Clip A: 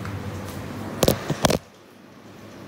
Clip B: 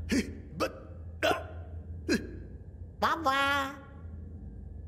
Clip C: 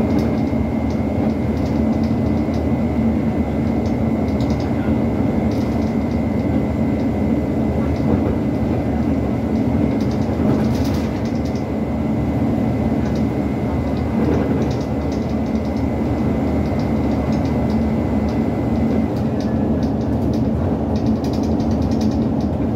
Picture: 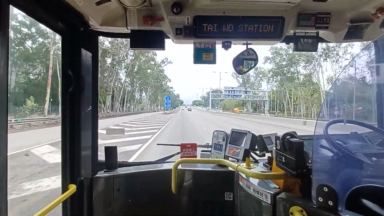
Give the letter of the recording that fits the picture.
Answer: C